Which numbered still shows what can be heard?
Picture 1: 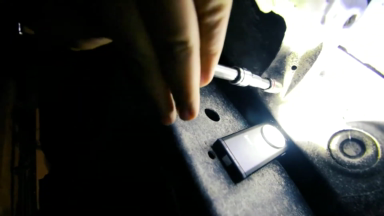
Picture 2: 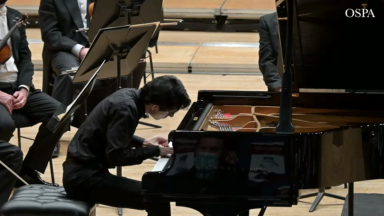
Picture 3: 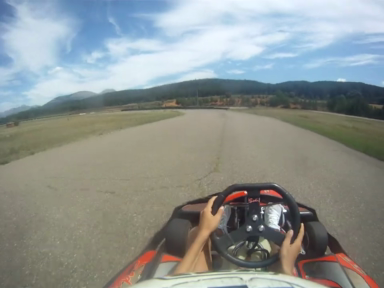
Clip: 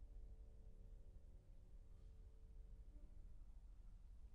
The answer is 2